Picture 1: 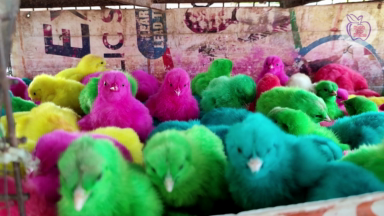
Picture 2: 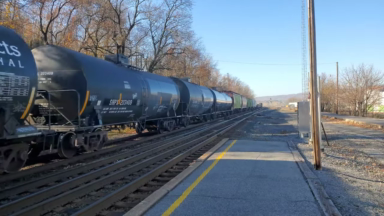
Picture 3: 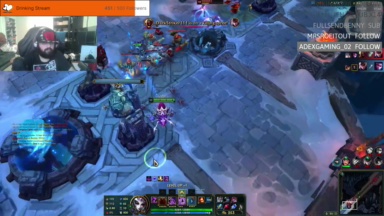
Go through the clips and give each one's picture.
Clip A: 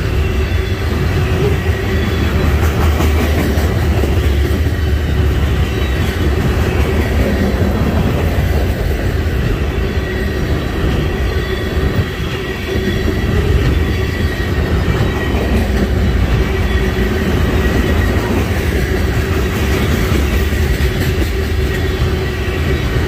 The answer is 2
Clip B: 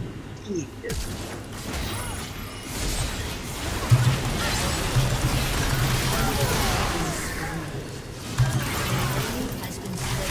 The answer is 3